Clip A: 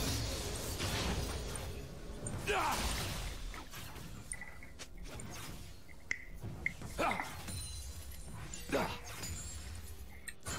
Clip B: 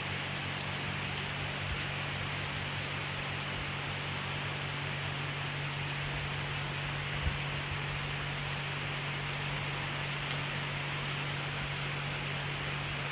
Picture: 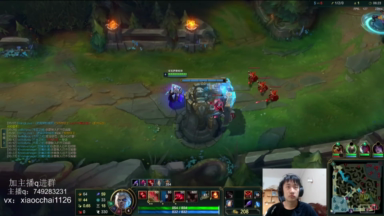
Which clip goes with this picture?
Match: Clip A